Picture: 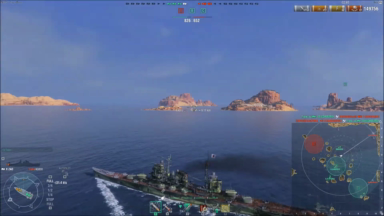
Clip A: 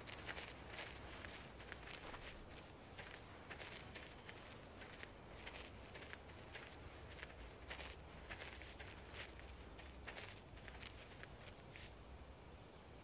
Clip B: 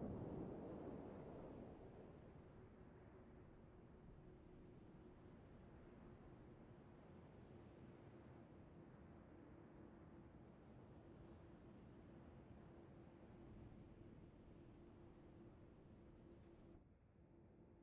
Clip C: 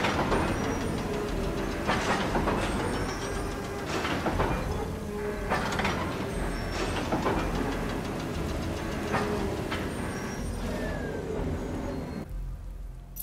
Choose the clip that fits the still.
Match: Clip B